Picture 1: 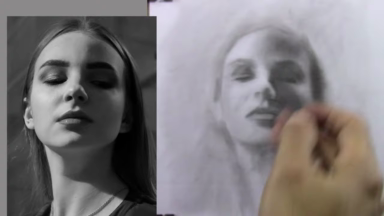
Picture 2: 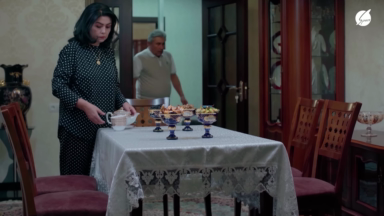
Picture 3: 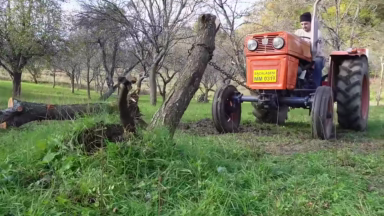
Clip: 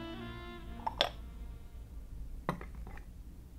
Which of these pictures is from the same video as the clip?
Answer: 2